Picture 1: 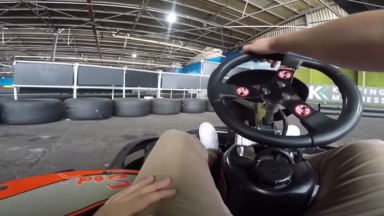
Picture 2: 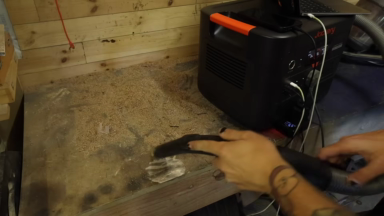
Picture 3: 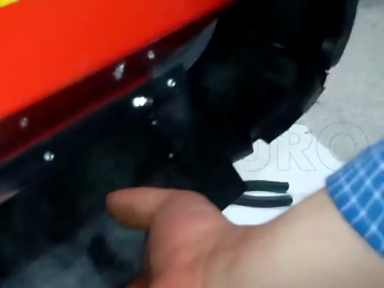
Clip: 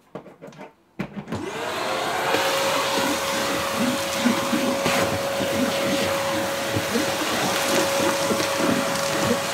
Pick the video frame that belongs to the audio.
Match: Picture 2